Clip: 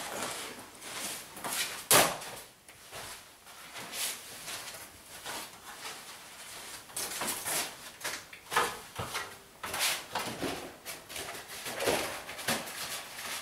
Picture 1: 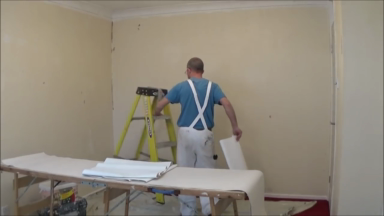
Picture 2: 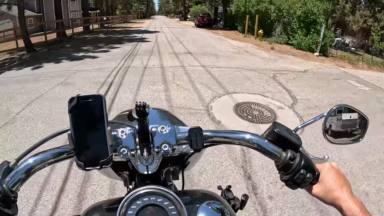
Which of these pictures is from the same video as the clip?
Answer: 1